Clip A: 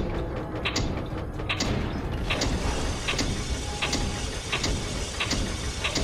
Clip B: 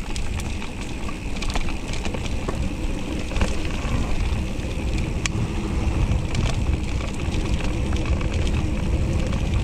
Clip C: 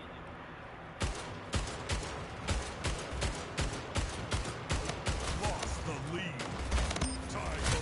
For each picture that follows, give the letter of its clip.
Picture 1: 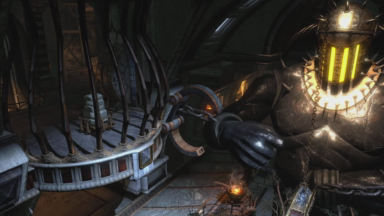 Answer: A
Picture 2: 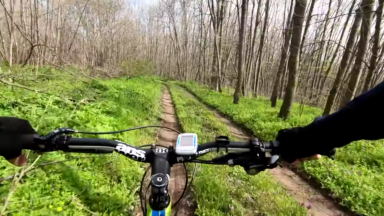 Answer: B